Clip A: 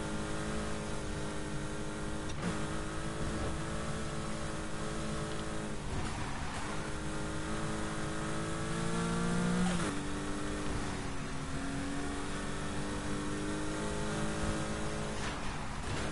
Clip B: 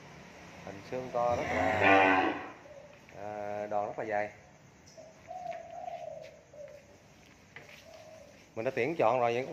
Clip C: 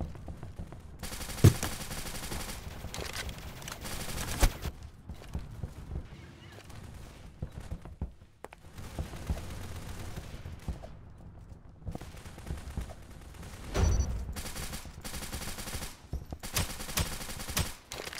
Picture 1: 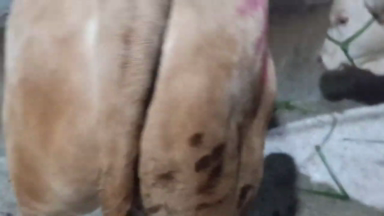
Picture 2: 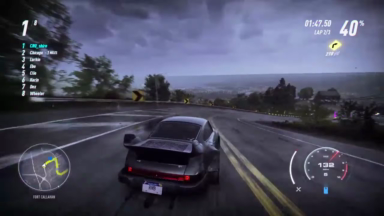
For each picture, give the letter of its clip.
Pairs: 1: B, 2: A